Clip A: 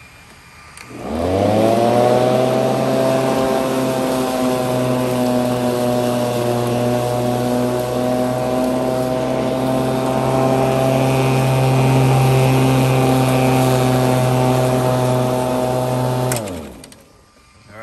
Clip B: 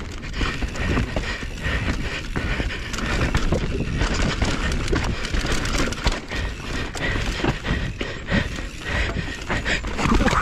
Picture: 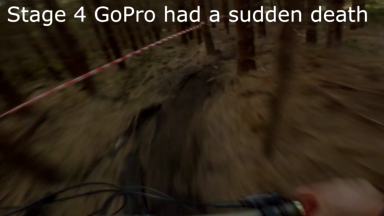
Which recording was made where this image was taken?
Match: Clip B